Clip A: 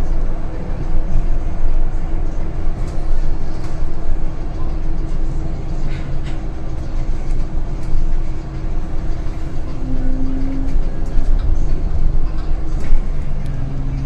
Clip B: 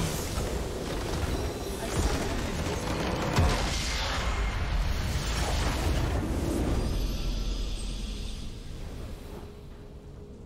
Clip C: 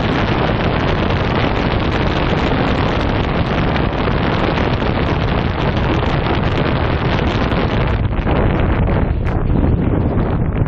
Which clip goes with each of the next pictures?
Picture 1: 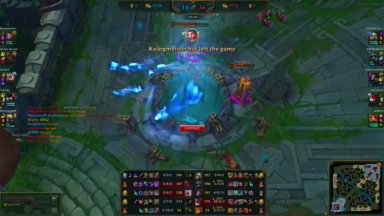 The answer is B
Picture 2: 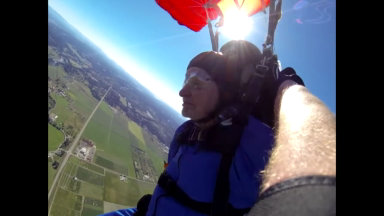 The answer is C